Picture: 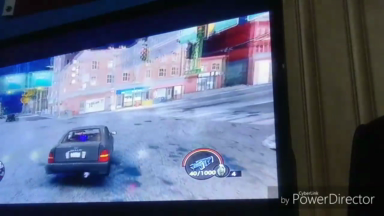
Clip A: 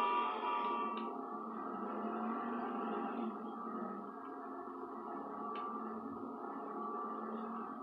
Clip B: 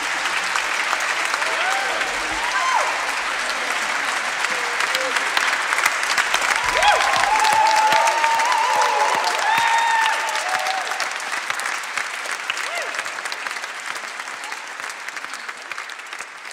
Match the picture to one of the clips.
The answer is A